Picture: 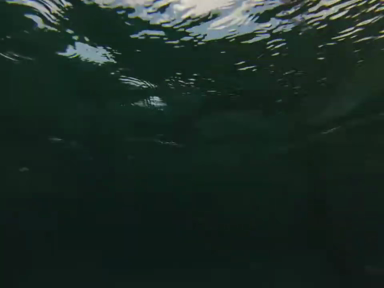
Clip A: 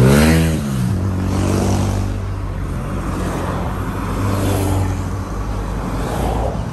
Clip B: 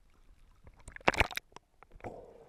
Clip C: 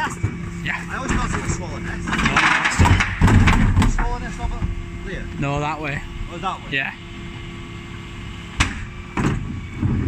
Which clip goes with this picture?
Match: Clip B